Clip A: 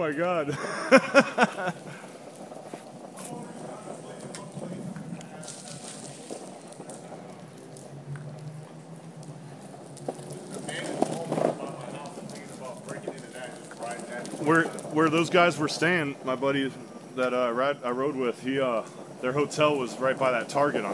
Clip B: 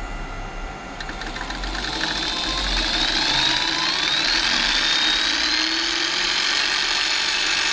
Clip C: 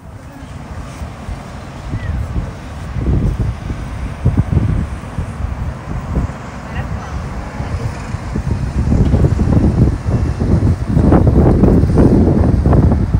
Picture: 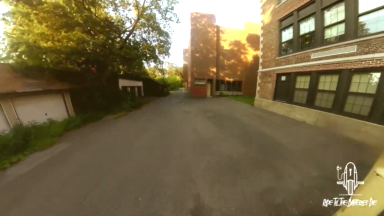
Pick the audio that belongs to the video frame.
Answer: A